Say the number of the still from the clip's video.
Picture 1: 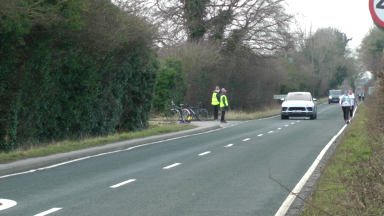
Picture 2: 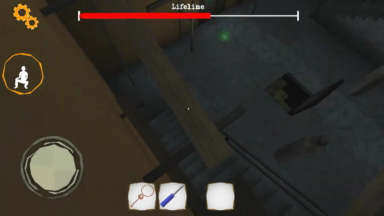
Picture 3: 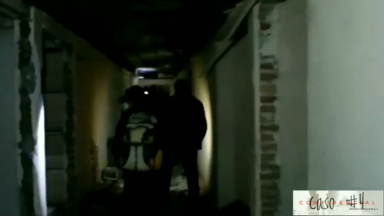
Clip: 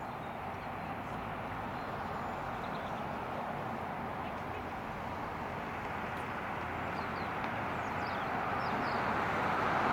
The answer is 1